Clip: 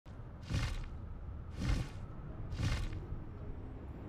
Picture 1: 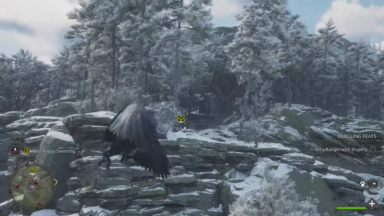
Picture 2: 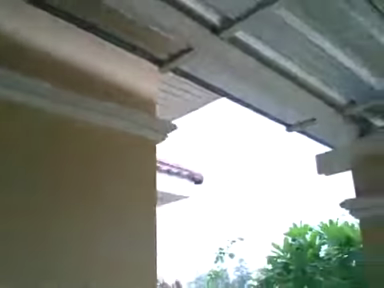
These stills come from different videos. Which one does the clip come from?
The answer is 1